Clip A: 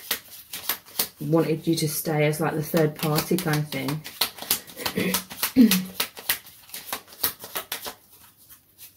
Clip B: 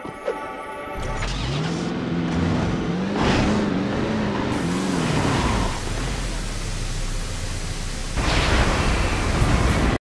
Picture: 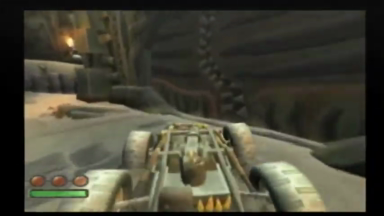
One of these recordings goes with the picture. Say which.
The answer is B